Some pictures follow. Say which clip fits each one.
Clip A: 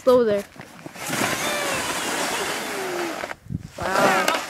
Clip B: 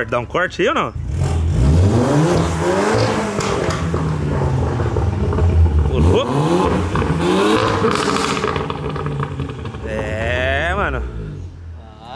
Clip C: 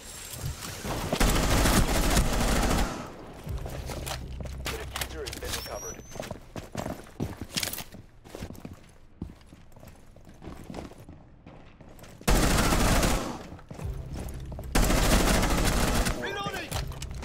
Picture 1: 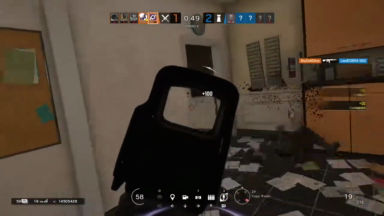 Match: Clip C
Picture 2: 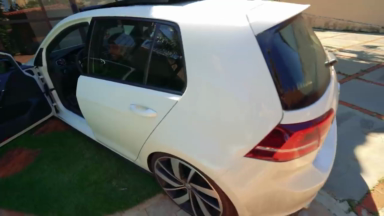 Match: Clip B